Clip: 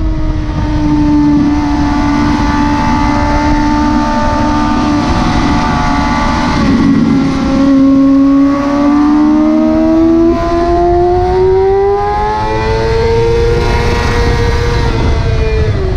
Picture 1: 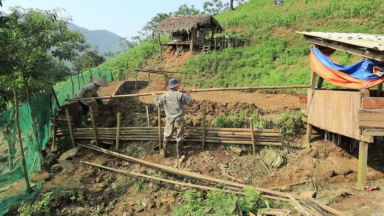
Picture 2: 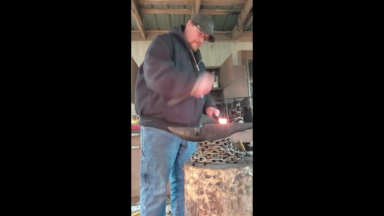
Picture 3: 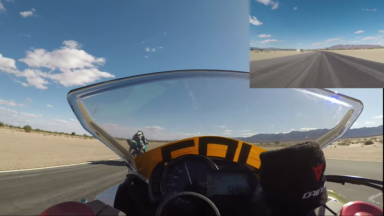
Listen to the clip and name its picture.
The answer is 3